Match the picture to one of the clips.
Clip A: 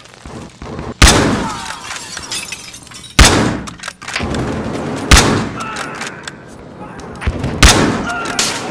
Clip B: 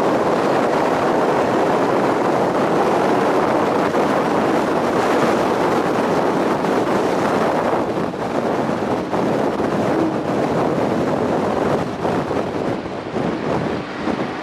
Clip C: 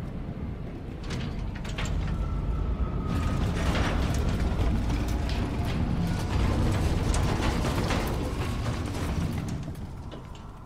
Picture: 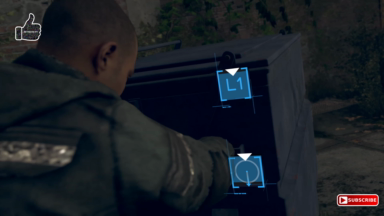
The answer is C